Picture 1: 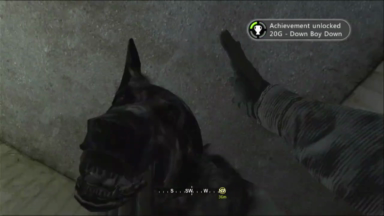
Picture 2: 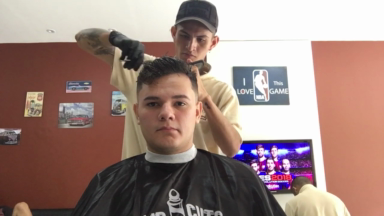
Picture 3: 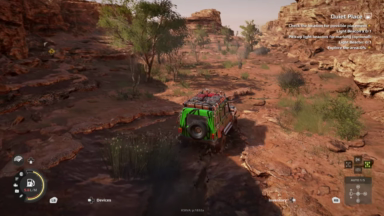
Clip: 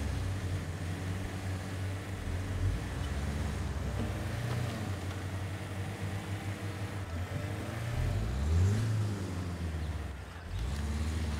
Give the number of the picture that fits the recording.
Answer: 3